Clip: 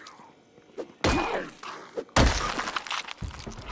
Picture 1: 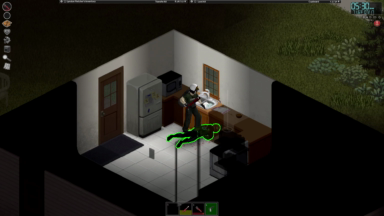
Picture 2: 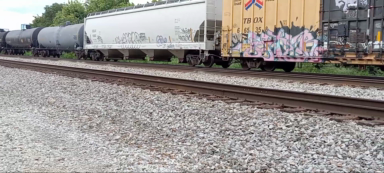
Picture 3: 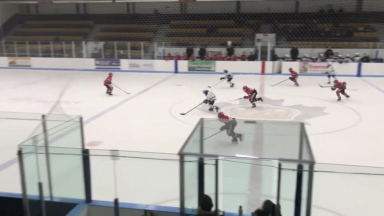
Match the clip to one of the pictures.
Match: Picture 1